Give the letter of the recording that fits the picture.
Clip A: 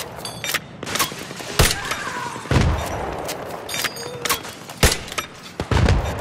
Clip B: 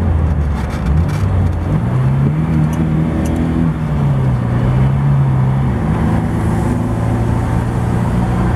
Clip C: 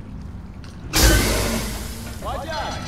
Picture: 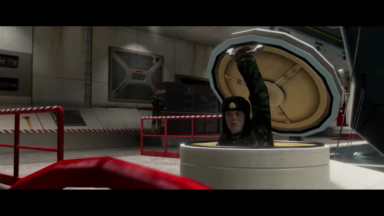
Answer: C